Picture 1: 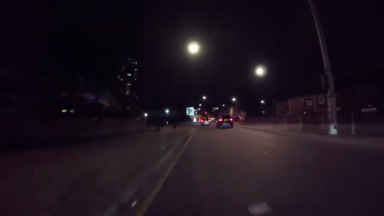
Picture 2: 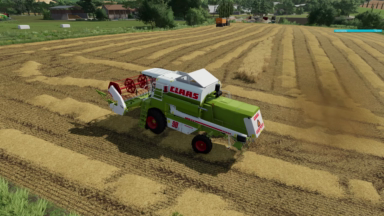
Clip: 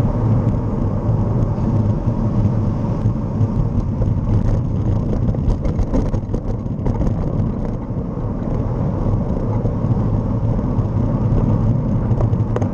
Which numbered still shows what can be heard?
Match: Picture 1